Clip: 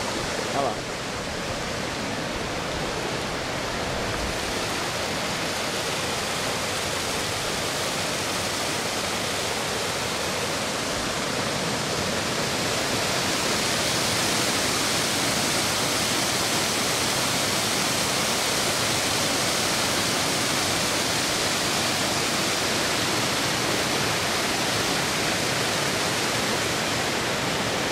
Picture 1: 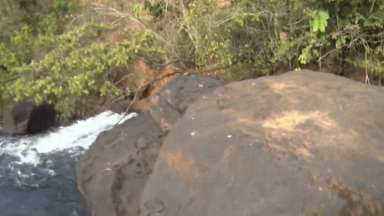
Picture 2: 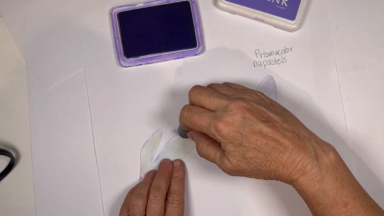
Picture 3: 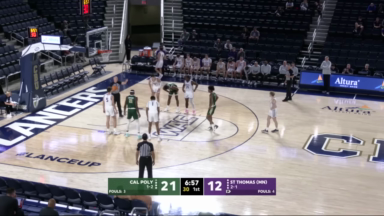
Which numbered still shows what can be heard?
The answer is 1